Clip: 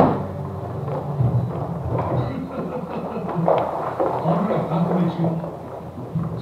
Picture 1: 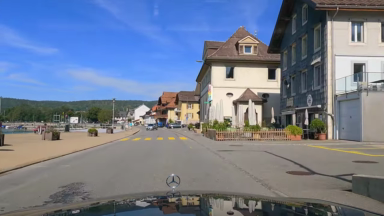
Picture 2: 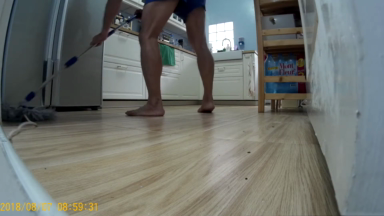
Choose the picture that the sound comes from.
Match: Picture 2